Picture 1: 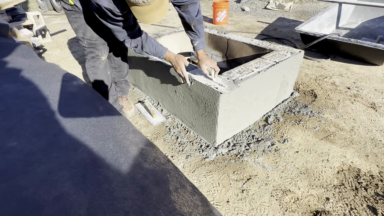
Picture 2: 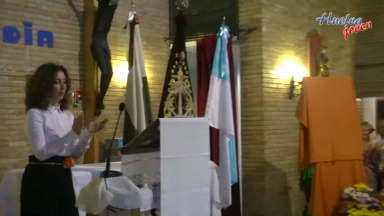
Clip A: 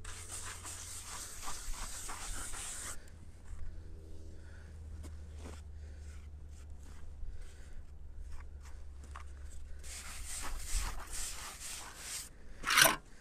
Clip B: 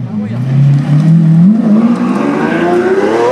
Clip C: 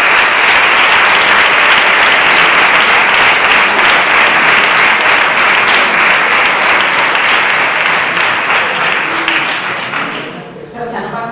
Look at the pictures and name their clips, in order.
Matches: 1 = A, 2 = C